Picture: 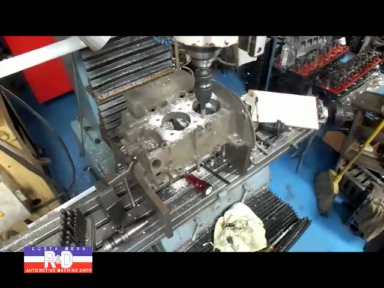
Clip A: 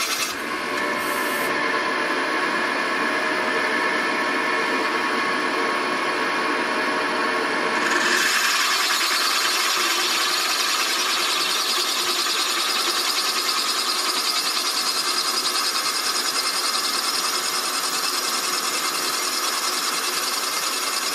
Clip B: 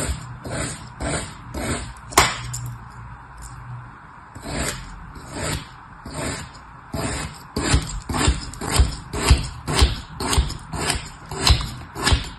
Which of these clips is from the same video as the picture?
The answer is A